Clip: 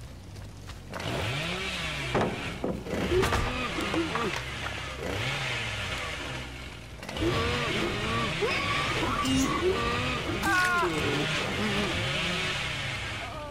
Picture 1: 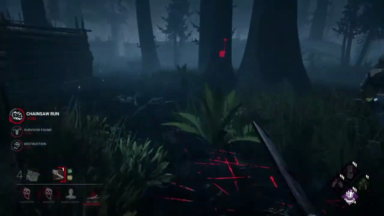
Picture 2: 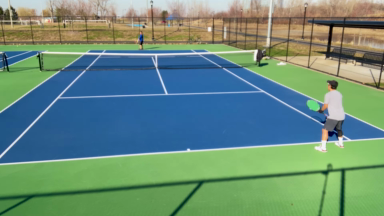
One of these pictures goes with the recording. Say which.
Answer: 1